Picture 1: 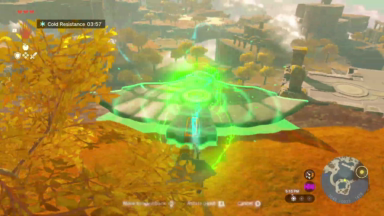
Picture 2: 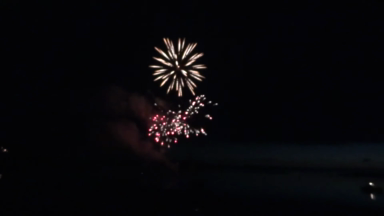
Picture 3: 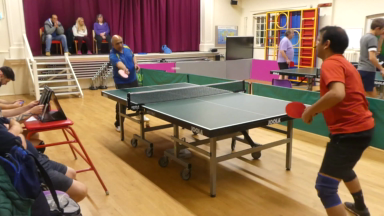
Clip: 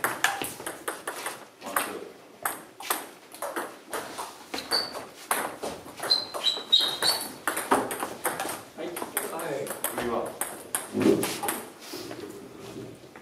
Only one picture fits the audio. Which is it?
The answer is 3